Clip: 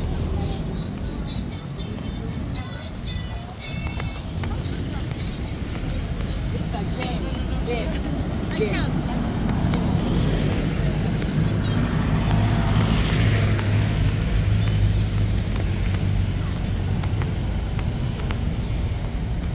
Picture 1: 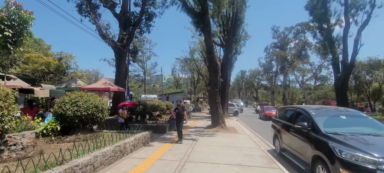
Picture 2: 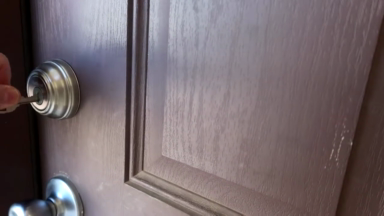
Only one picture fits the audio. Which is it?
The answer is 1